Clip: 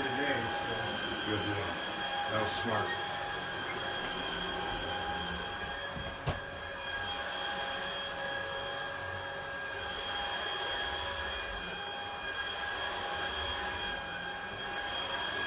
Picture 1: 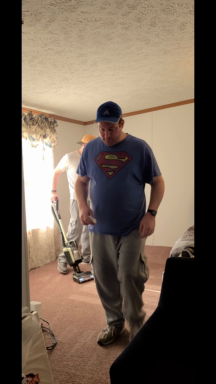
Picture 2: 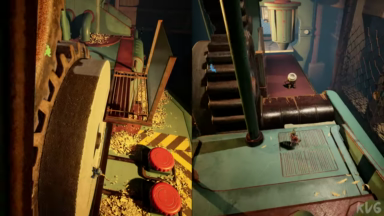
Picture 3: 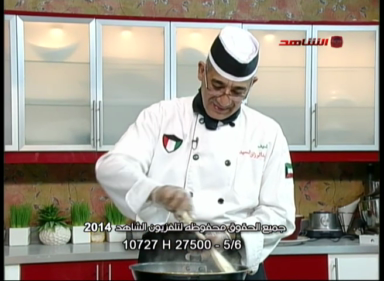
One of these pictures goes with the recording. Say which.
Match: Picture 1